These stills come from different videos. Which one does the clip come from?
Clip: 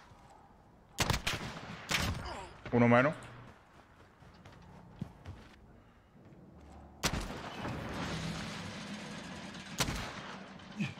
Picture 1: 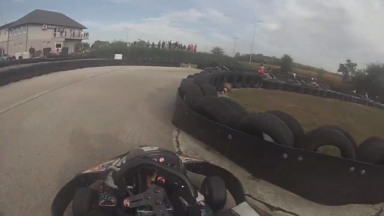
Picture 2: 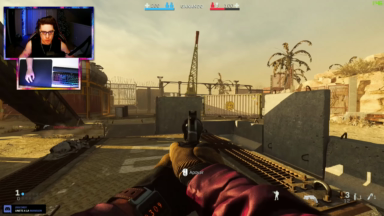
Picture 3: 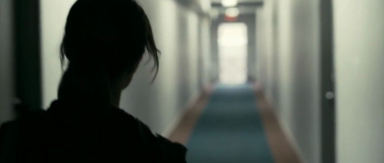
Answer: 2